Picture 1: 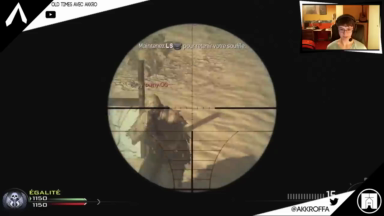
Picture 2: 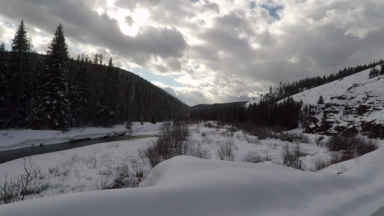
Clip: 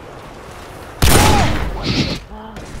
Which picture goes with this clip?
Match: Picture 1